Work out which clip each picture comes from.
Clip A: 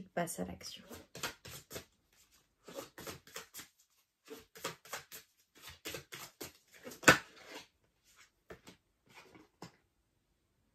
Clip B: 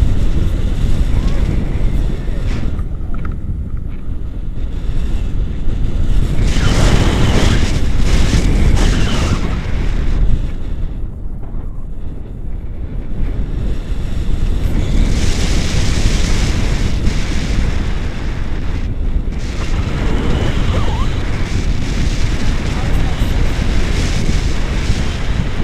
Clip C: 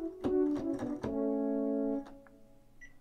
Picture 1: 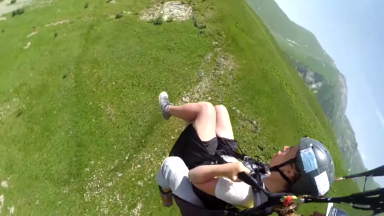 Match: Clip B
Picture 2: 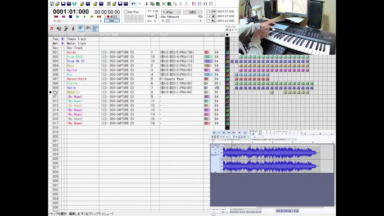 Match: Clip C